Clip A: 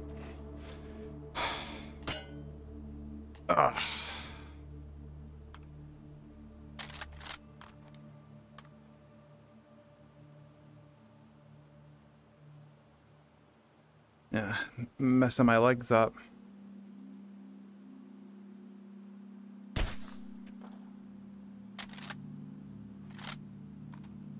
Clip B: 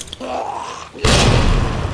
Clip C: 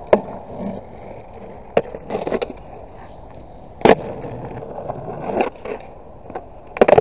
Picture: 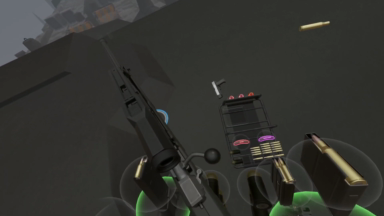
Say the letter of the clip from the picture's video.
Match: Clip A